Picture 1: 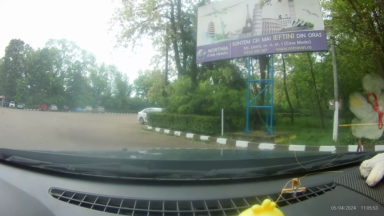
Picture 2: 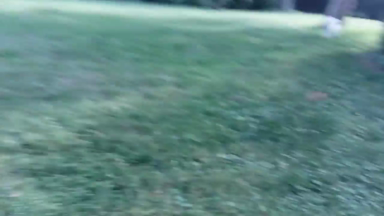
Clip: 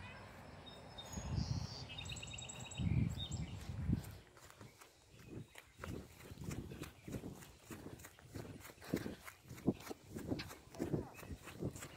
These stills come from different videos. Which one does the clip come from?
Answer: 2